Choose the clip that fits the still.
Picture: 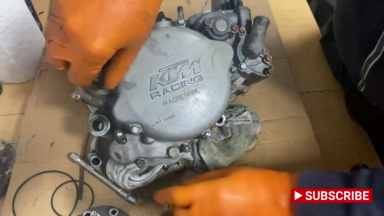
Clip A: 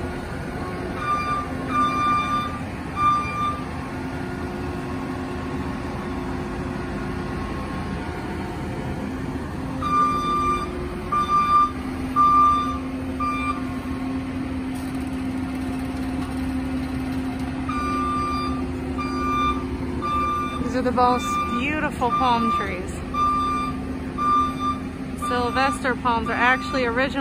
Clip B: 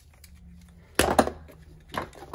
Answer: B